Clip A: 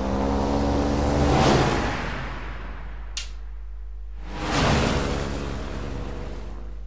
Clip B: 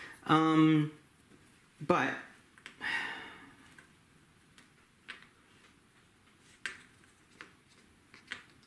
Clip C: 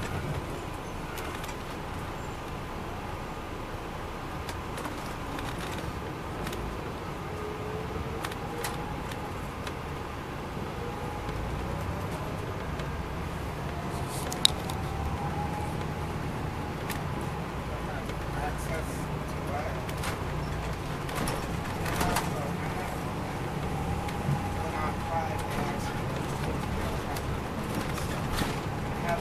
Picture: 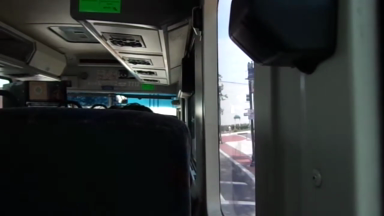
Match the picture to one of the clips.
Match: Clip C